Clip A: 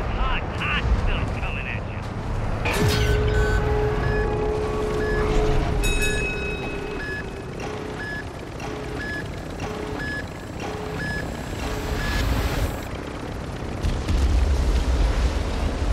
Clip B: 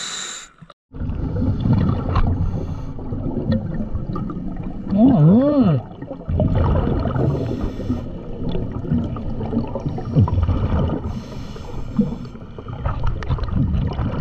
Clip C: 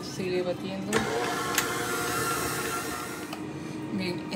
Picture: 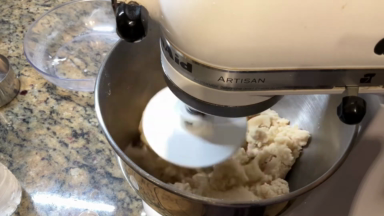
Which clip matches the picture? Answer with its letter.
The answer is C